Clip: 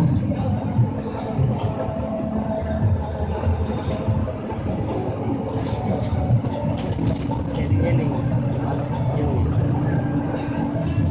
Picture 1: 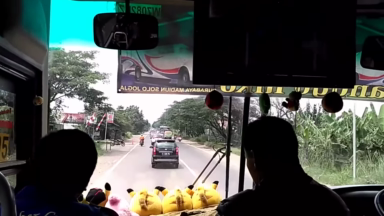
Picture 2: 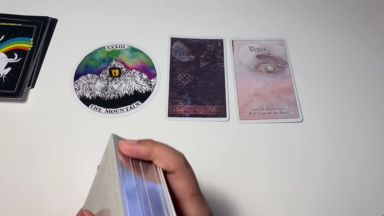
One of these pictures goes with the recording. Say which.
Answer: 1